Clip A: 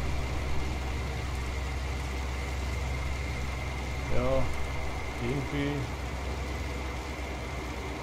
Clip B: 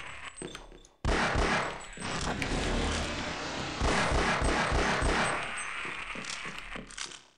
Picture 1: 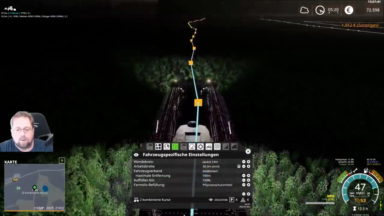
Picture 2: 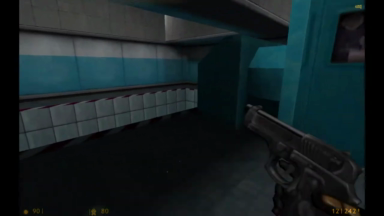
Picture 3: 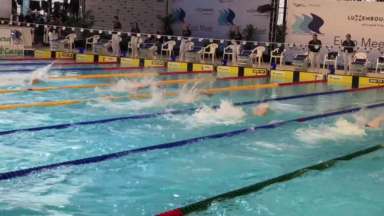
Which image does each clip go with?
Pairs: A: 1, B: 2